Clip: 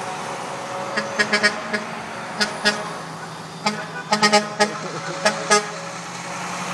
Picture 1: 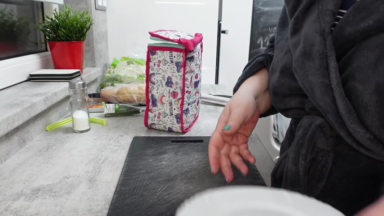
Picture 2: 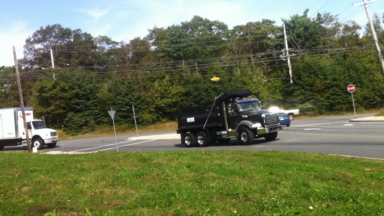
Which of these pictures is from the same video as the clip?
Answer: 2